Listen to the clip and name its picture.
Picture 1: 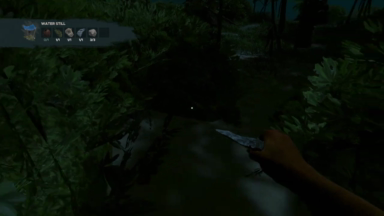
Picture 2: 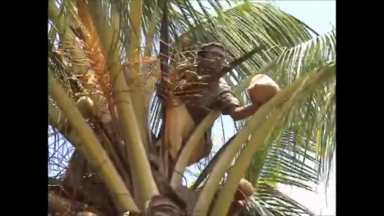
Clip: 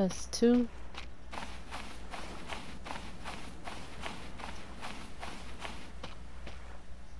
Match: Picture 1